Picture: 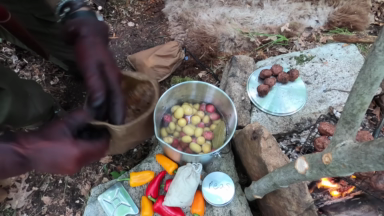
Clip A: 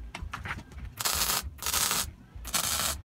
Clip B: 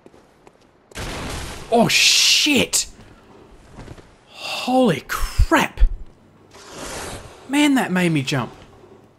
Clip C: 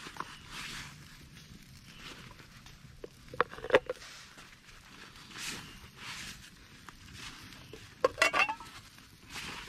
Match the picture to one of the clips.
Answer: C